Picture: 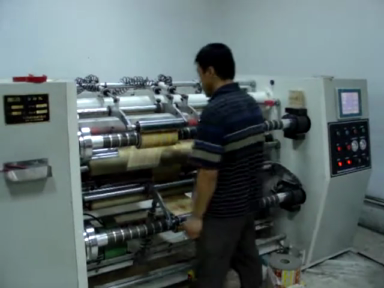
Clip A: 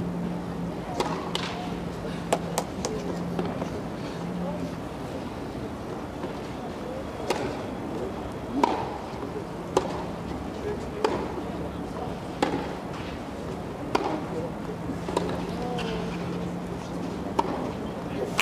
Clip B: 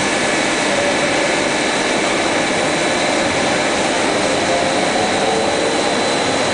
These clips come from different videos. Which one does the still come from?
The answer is B